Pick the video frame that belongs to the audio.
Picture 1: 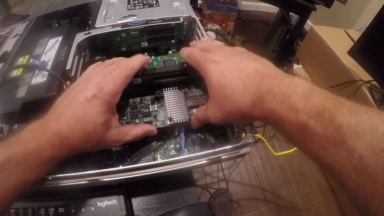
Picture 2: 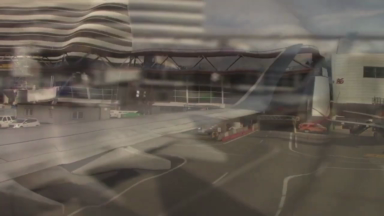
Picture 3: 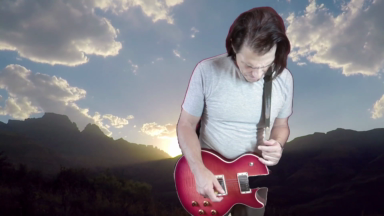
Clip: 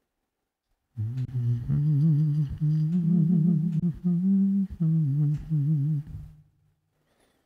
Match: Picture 3